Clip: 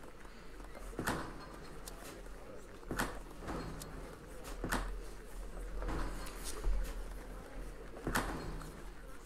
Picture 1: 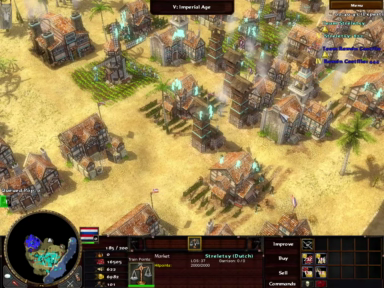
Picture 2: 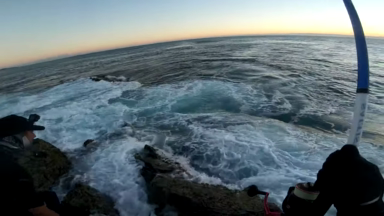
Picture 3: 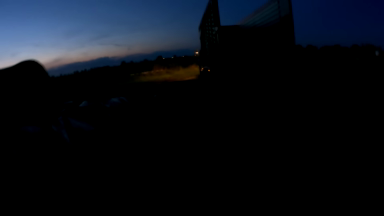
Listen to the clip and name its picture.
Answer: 1